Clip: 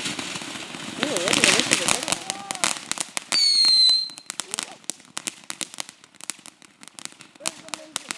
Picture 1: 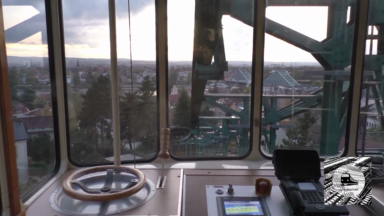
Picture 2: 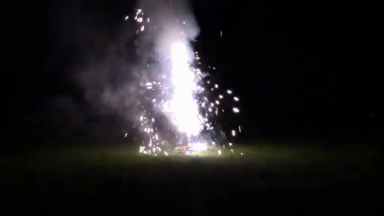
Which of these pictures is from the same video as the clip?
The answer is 2